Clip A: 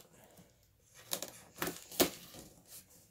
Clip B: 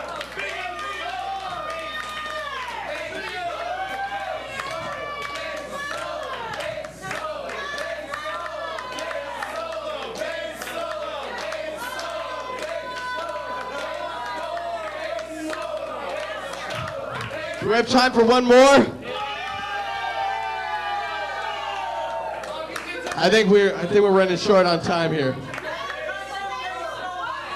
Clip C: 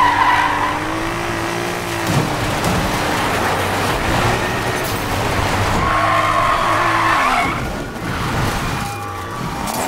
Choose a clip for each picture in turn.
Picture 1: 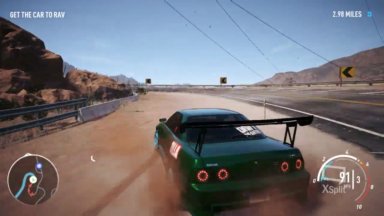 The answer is C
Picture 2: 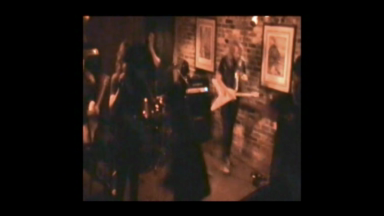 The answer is B